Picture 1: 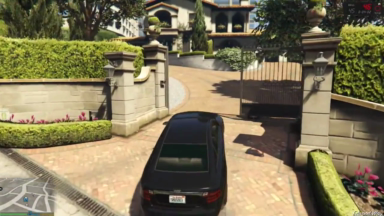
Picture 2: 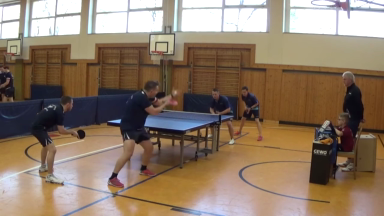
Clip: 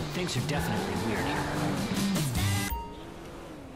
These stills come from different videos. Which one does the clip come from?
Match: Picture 1